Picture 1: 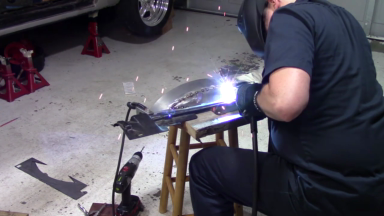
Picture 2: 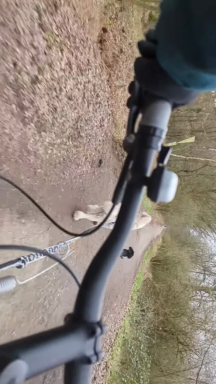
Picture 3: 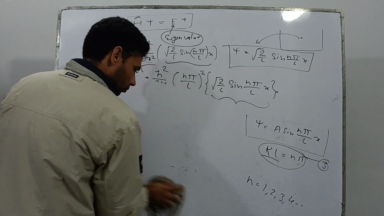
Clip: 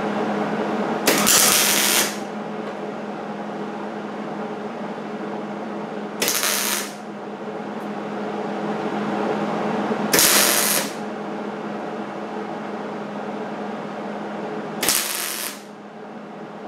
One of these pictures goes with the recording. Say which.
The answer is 1